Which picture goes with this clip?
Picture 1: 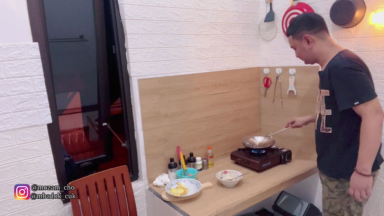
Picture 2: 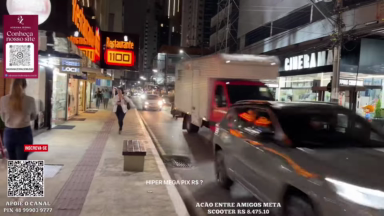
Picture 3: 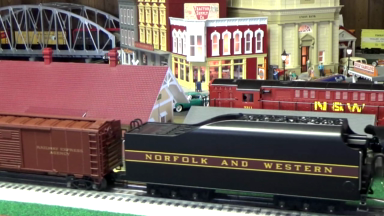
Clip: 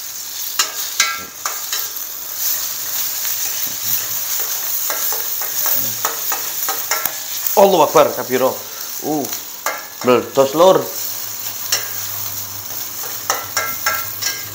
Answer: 1